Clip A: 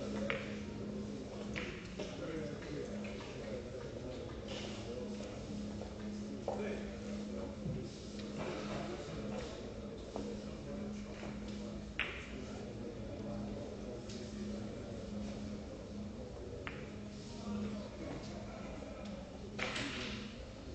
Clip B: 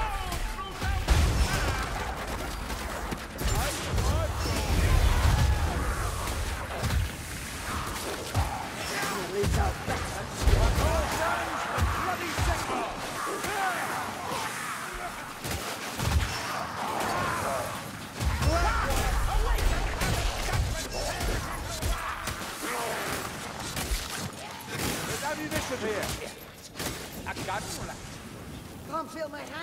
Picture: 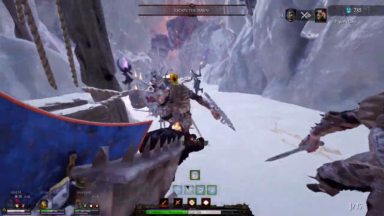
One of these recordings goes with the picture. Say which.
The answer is B